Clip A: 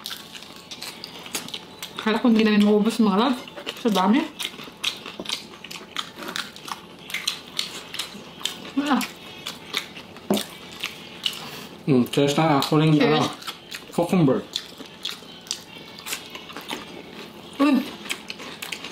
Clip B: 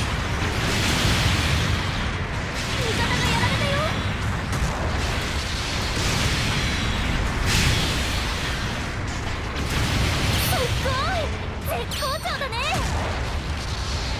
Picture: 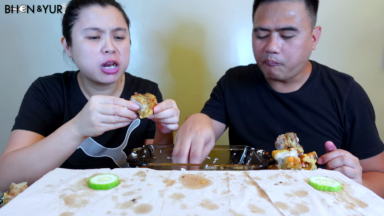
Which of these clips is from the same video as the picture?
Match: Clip A